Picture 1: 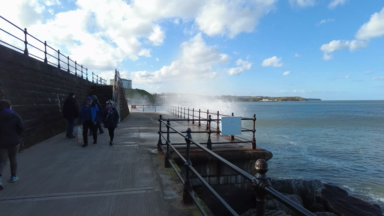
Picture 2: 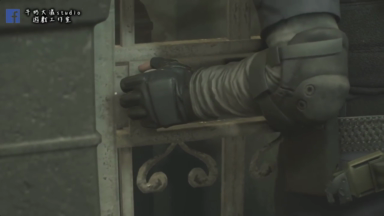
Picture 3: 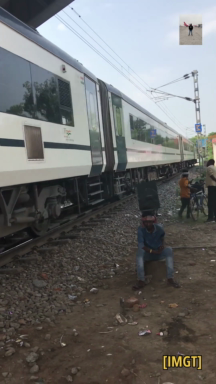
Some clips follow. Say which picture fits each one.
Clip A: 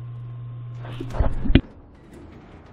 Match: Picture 2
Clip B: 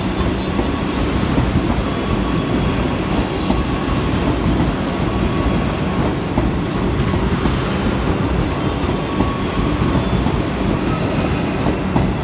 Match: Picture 3